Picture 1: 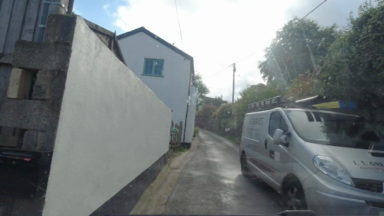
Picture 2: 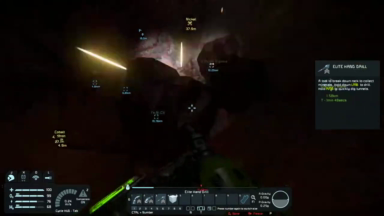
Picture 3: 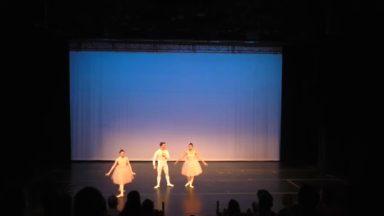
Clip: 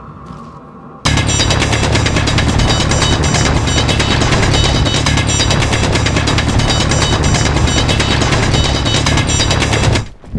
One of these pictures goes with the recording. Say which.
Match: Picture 2